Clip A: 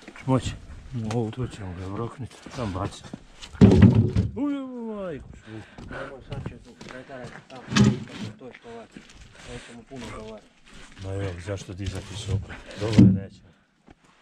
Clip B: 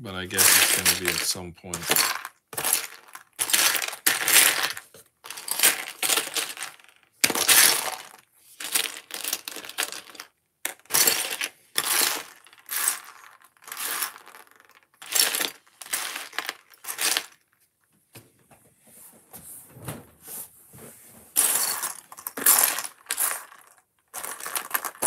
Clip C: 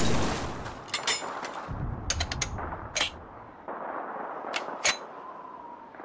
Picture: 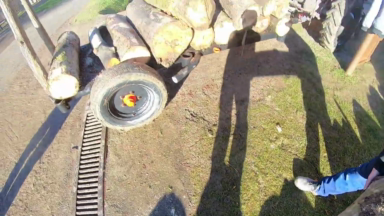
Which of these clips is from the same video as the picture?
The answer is A